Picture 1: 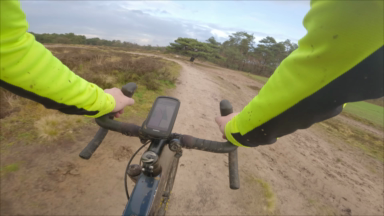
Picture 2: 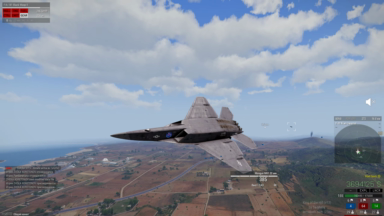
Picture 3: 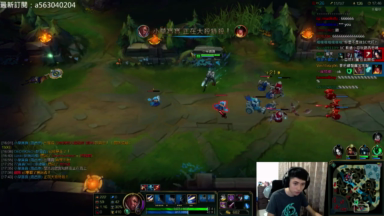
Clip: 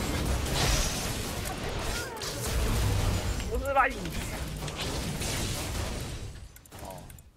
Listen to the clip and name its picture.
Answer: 3